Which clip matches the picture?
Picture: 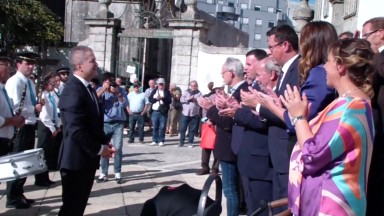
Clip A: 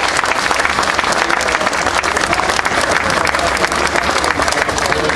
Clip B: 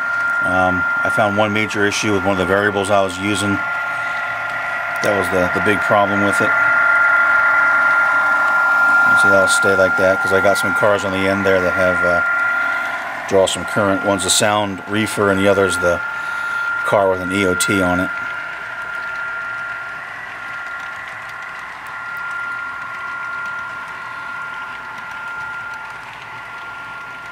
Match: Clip A